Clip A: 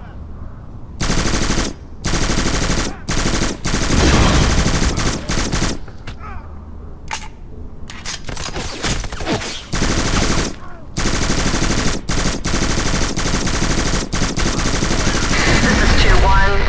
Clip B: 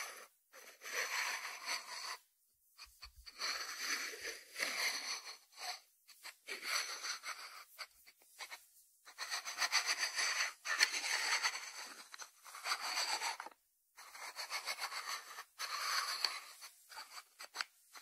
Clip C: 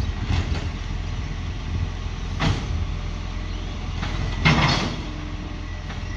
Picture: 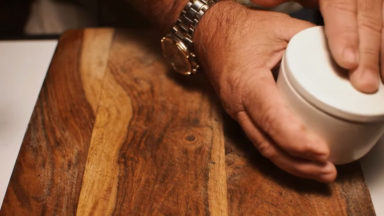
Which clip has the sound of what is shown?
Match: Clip B